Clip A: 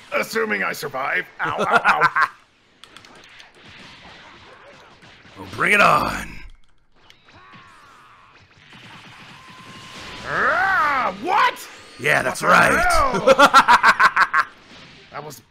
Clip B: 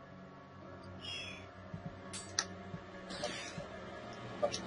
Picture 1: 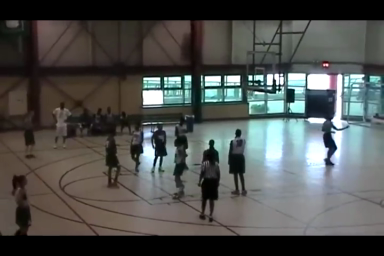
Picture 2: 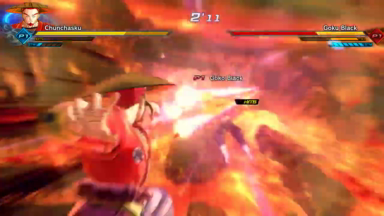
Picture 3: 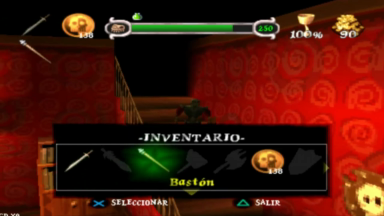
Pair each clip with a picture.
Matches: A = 2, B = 3